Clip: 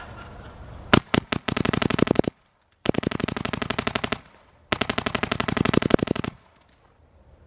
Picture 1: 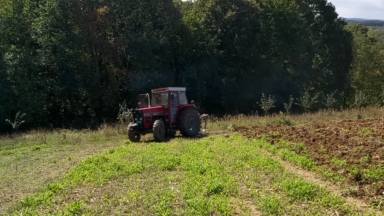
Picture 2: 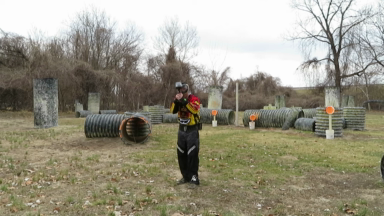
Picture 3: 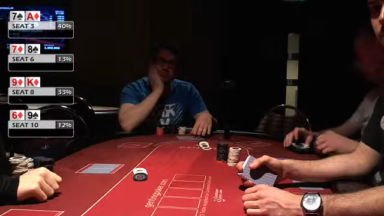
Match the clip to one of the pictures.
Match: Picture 2